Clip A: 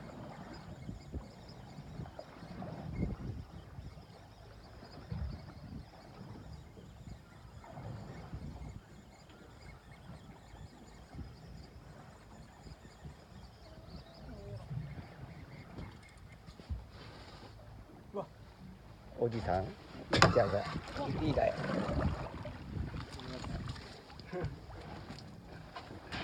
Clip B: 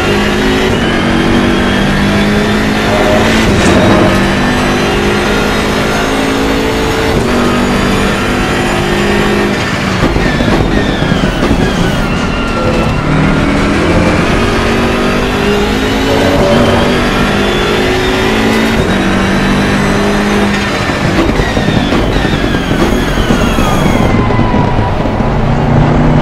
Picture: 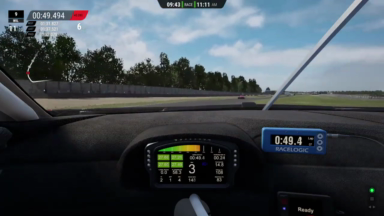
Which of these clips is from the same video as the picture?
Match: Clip B